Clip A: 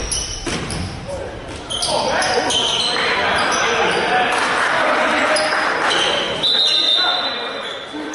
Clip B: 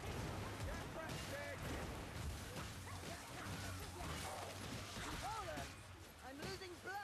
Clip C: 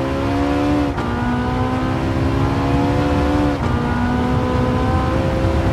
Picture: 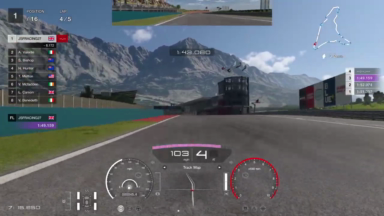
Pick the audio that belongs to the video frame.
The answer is C